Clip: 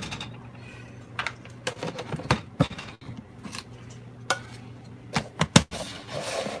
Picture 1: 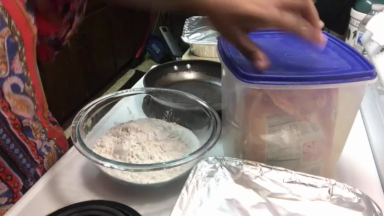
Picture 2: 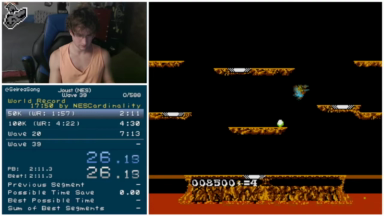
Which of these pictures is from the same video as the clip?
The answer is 1